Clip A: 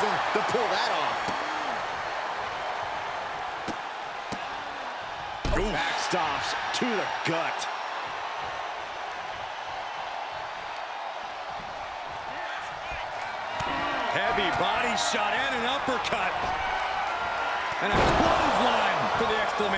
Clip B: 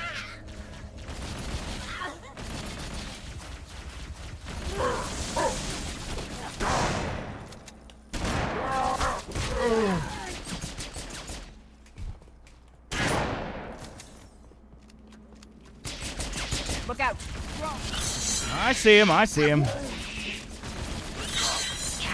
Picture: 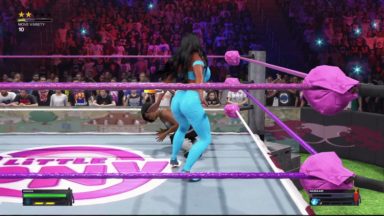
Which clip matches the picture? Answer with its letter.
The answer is A